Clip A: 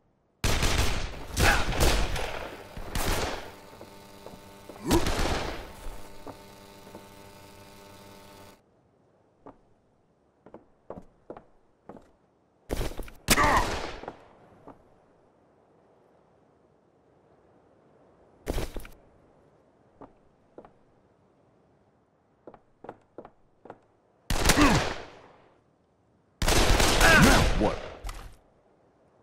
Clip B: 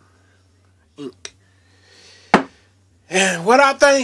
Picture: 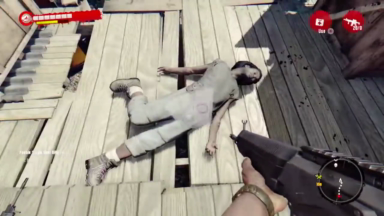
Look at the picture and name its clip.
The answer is A